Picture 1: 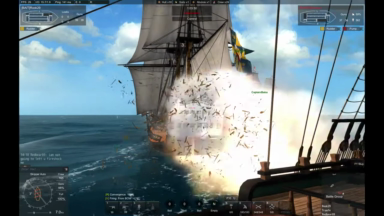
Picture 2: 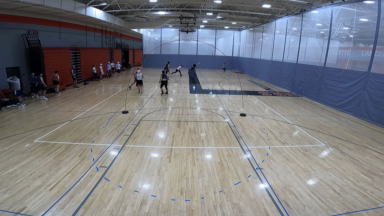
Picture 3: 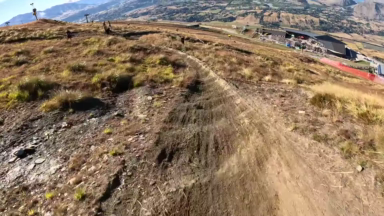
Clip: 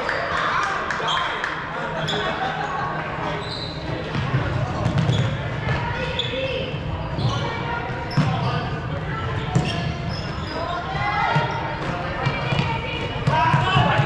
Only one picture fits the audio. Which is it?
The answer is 2